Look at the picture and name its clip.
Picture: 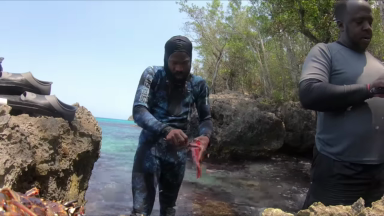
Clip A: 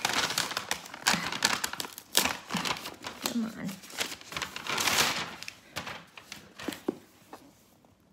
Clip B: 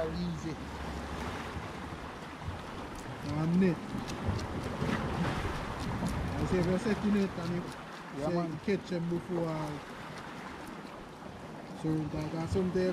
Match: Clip B